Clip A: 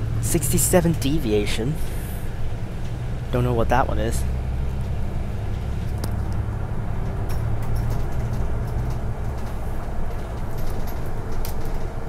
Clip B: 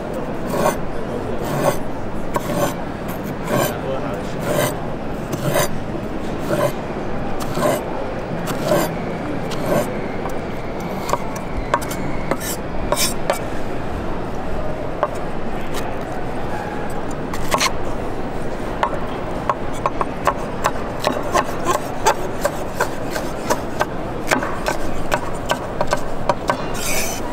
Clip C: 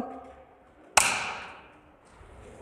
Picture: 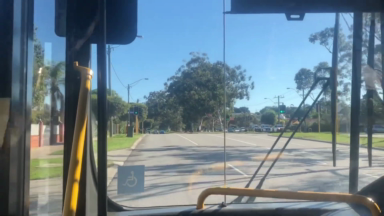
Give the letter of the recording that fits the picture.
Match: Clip A